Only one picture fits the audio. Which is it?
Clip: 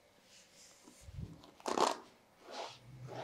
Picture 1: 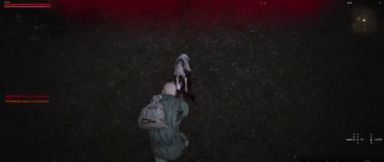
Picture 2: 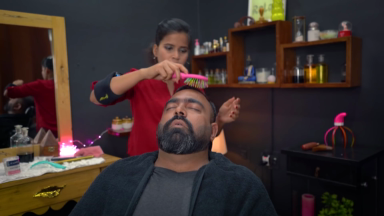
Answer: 2